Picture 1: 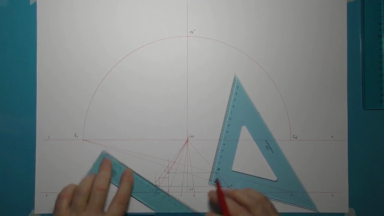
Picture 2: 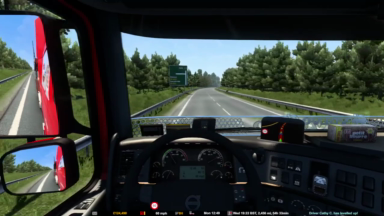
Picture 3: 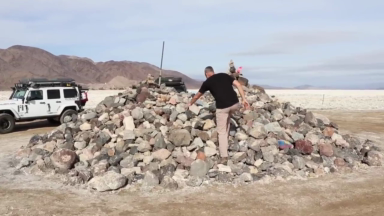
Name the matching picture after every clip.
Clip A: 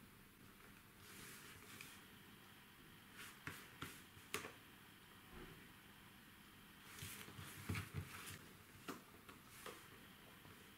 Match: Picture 1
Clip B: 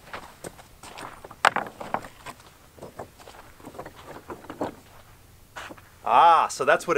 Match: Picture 3